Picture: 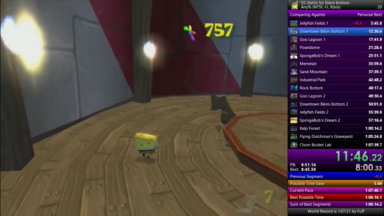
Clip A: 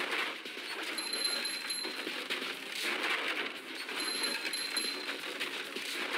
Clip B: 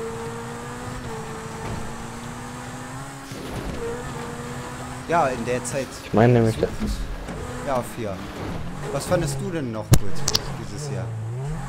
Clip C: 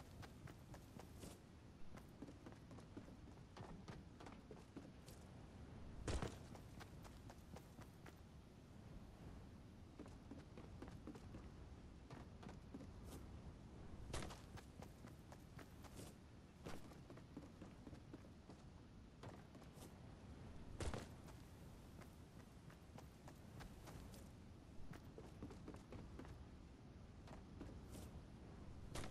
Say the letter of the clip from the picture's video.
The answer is A